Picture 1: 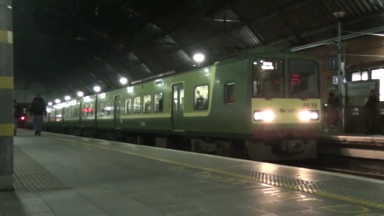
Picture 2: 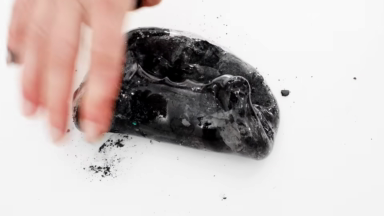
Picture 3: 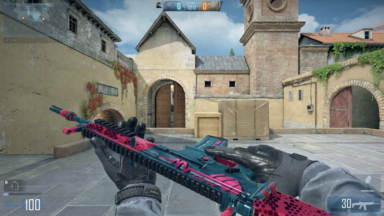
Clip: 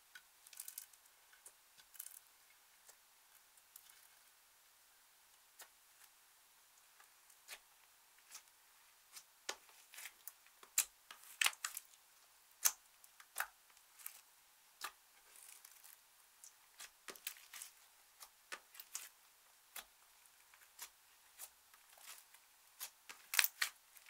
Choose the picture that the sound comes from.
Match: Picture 2